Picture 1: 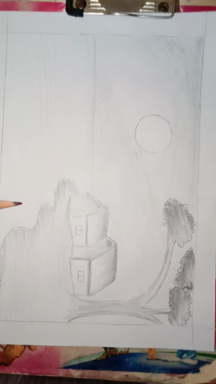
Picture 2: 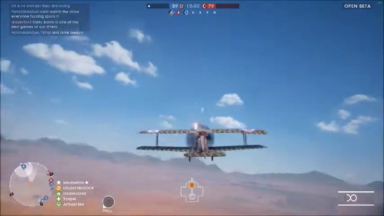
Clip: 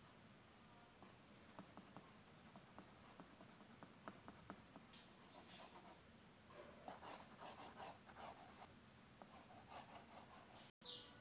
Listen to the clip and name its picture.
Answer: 1